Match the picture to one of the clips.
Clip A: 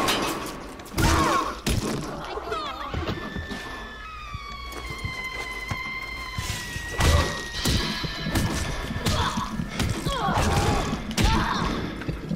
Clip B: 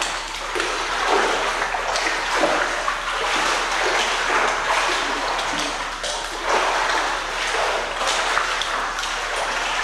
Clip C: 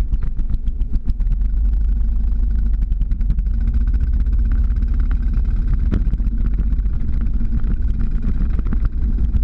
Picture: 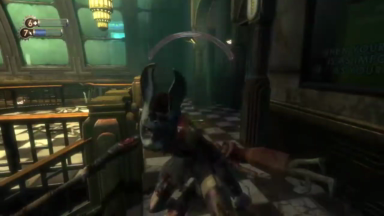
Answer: A